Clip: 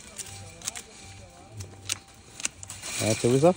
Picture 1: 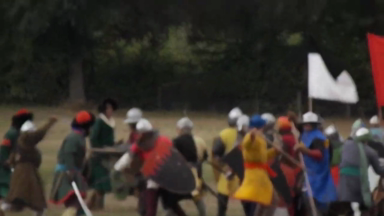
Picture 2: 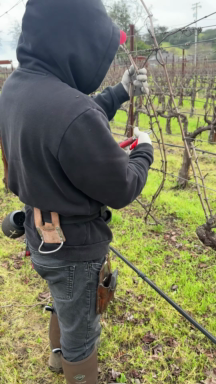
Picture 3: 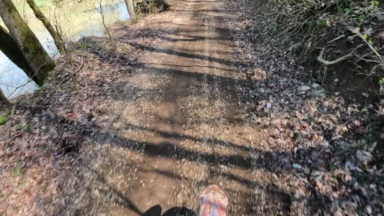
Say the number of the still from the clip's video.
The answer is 2